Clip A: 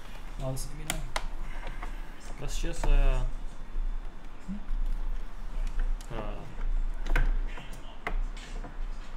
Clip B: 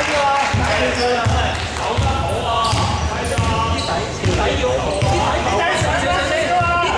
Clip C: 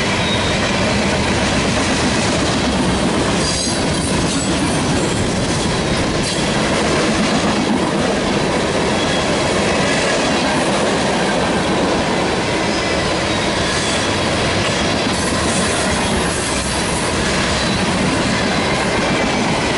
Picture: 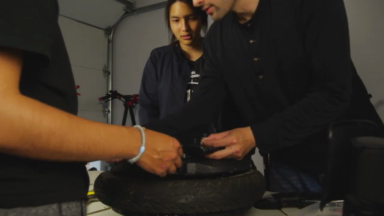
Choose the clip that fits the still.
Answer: A